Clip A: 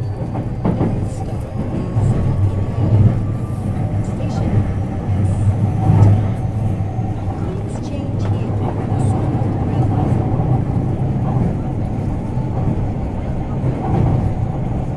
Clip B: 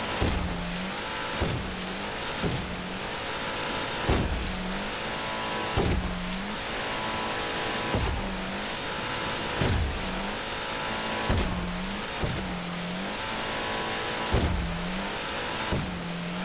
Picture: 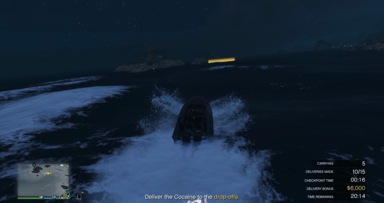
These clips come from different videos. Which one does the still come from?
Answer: B